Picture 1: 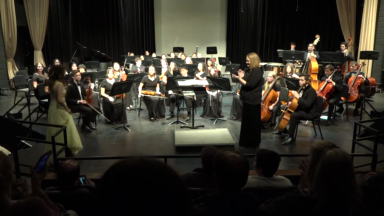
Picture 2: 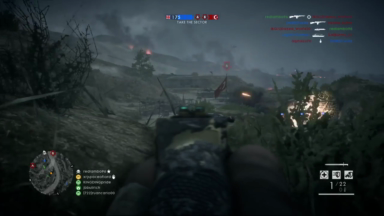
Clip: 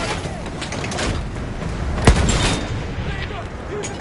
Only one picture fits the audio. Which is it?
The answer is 2